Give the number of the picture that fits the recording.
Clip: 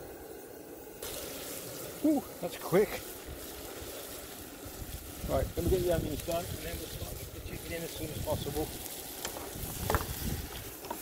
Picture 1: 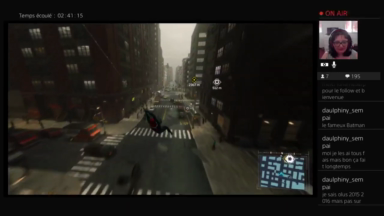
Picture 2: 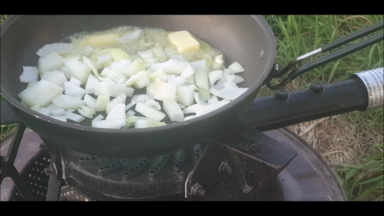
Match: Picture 2